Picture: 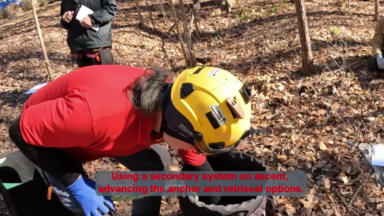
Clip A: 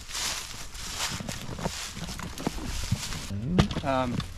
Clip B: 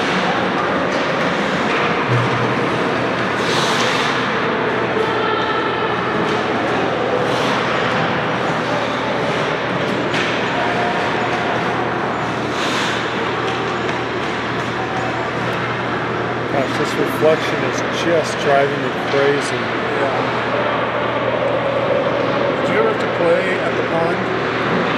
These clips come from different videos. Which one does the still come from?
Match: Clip A